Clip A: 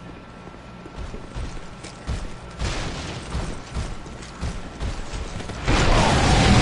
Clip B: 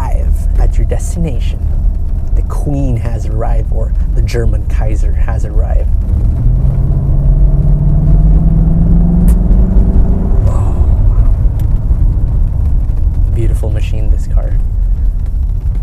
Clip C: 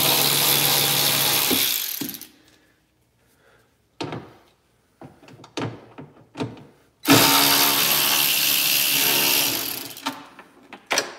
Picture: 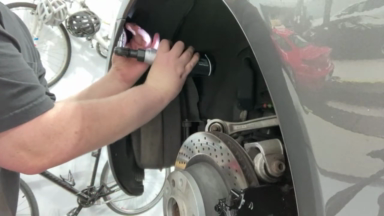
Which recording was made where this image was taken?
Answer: C